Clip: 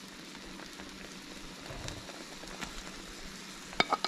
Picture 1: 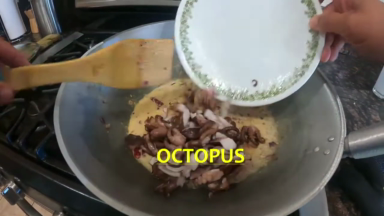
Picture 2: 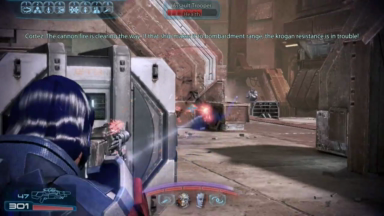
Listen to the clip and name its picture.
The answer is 1